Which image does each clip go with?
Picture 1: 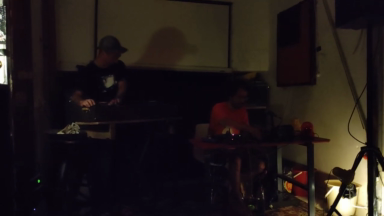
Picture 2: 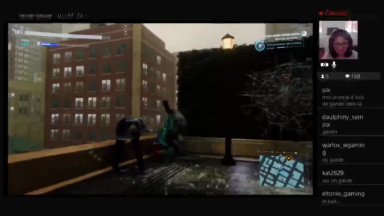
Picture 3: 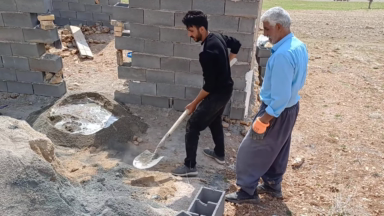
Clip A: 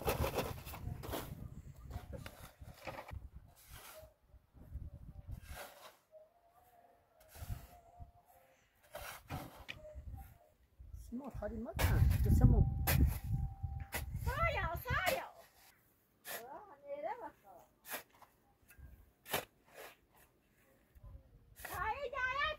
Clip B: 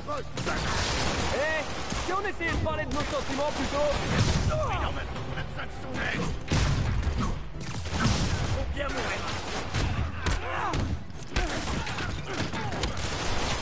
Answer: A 3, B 2